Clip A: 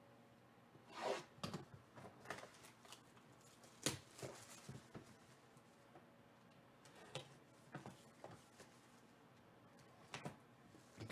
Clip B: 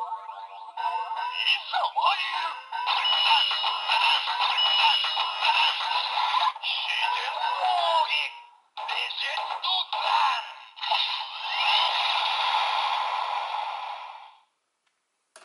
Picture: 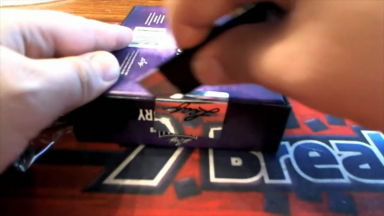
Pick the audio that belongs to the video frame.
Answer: A